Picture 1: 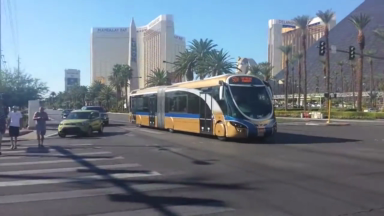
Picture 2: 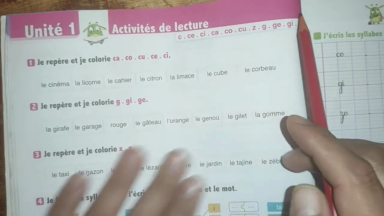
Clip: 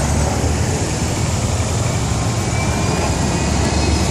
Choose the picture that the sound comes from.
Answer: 1